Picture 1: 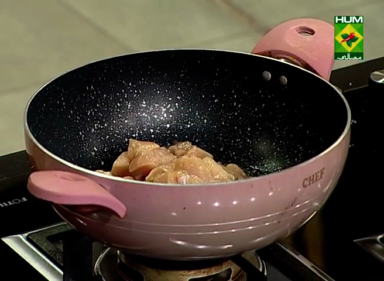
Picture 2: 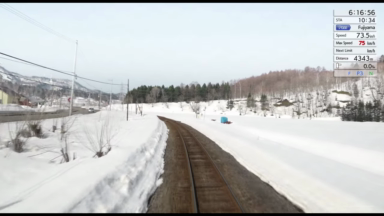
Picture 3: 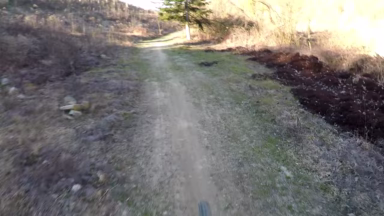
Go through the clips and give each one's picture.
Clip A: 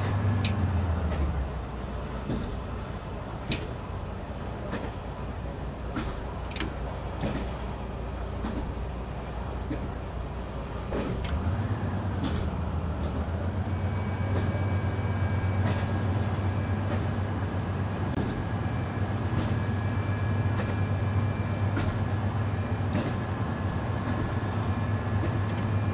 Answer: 2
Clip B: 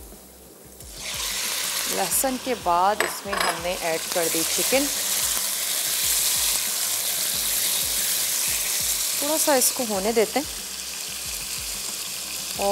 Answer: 1